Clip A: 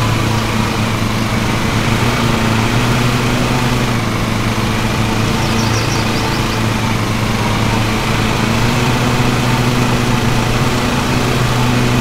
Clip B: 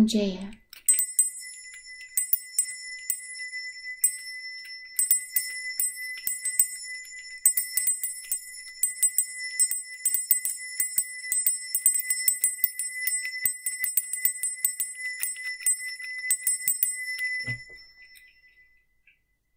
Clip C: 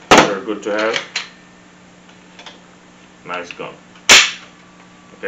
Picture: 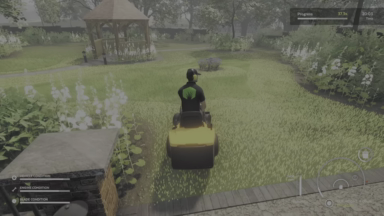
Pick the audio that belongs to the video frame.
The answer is A